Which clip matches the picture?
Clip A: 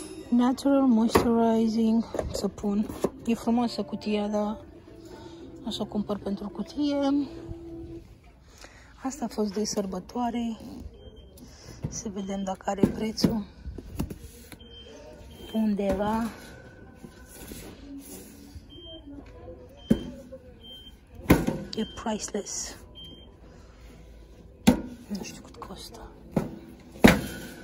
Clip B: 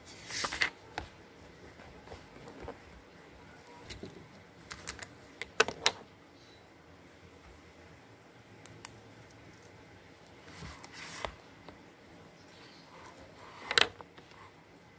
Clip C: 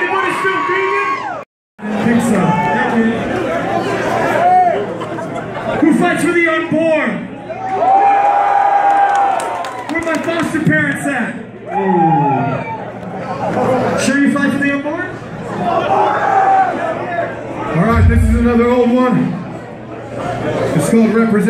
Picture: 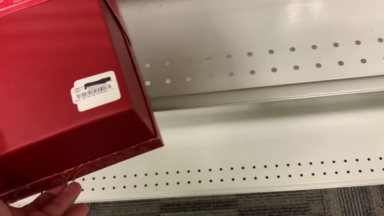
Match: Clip A